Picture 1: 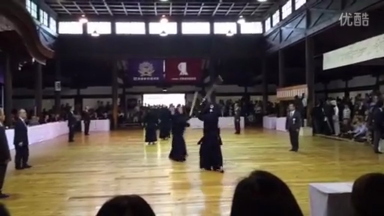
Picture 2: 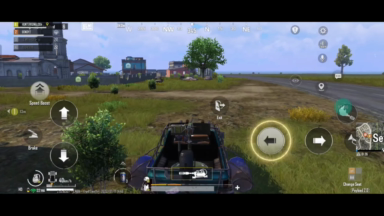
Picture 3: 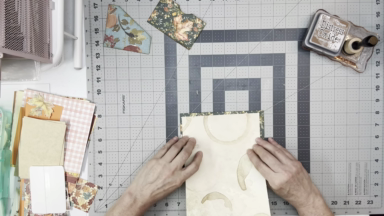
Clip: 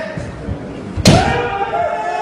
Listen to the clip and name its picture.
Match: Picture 1